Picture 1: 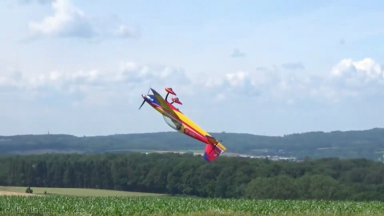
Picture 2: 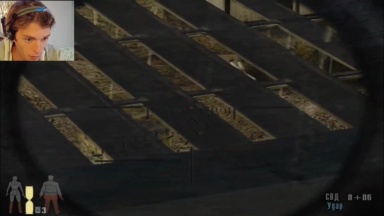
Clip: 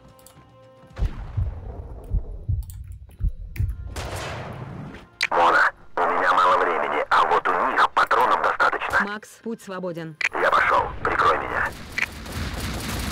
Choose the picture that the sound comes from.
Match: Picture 2